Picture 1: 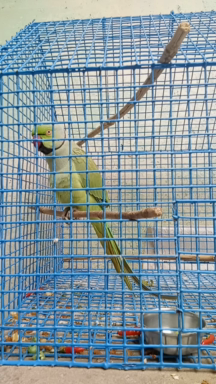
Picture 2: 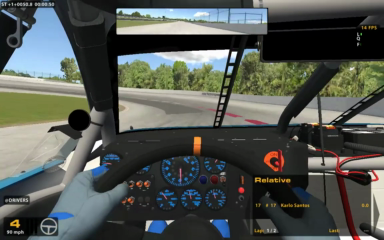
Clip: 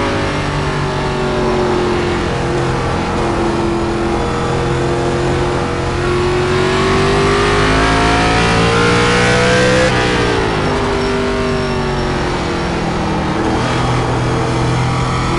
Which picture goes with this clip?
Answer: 2